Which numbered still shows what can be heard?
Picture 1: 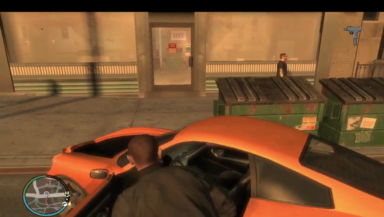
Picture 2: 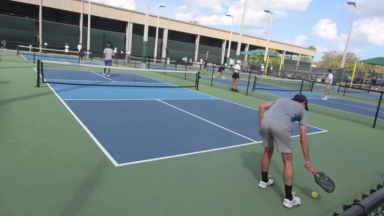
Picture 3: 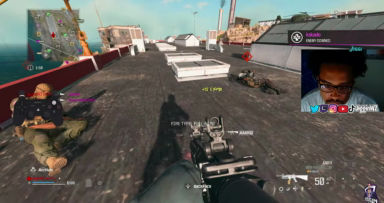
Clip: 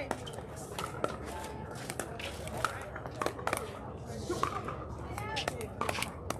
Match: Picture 2